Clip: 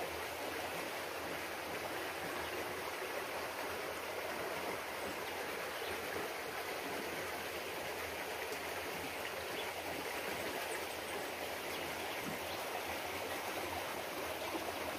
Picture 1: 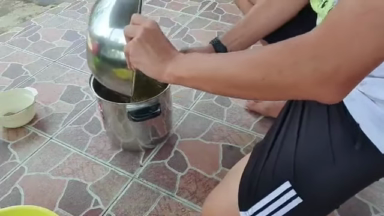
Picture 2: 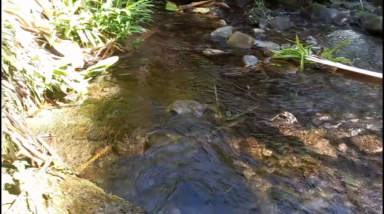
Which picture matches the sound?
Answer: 2